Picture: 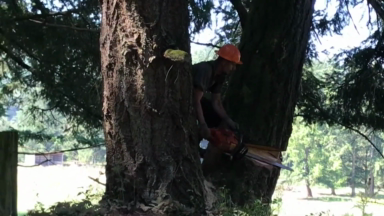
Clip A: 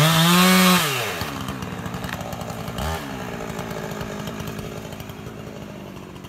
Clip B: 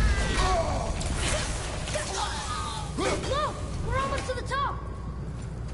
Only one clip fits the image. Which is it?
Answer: A